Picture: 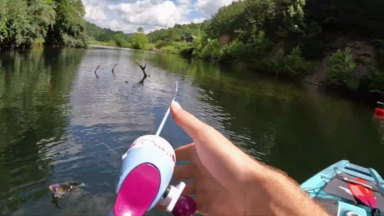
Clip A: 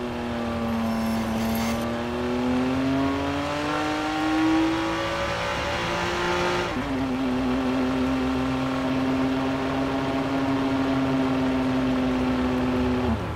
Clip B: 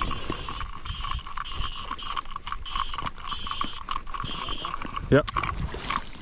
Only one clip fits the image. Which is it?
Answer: B